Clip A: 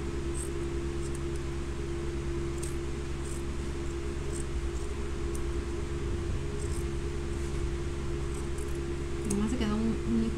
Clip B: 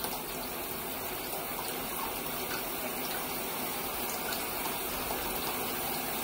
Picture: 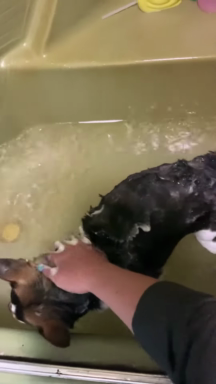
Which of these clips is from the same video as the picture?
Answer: B